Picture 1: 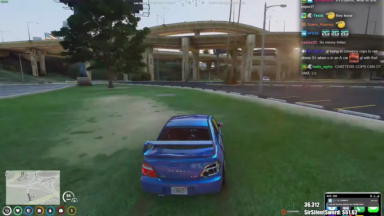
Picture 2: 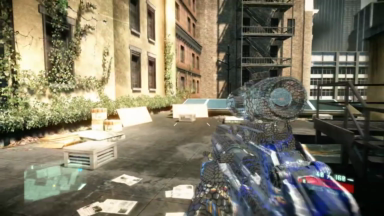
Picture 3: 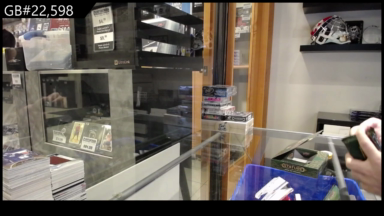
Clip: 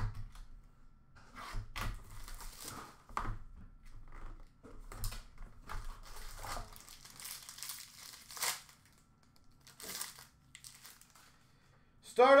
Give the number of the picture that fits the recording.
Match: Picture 3